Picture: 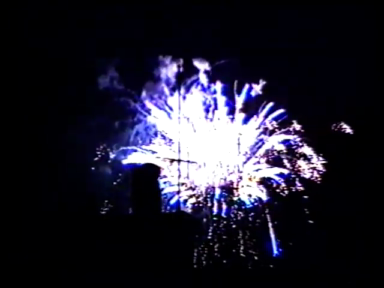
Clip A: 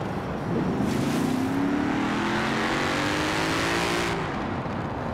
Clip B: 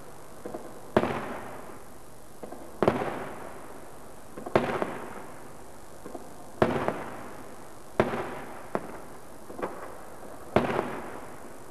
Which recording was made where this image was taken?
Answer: B